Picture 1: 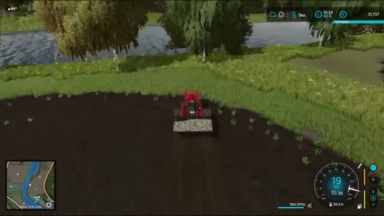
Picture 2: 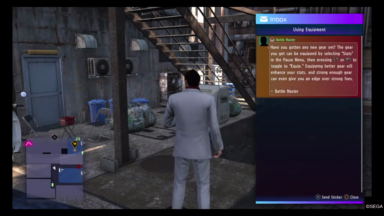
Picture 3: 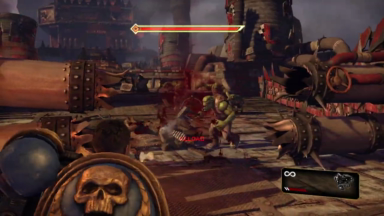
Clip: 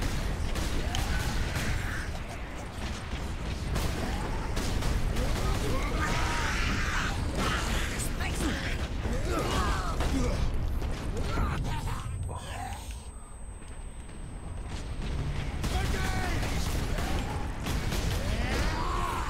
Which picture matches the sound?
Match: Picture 3